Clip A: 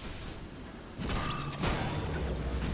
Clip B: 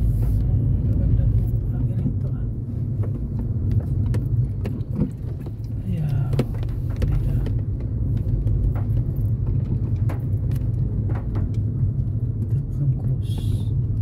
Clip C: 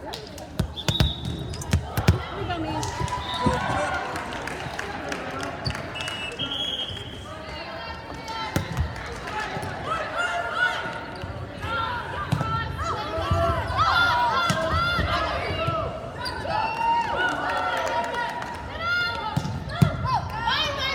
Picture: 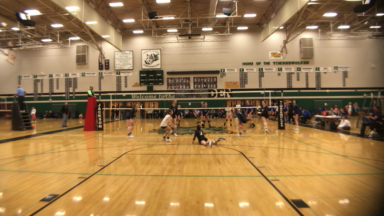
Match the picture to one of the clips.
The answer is C